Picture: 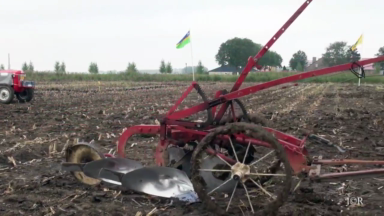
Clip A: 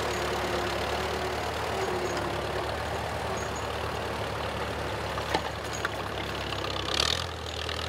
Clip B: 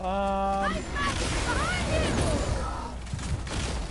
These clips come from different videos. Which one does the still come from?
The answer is A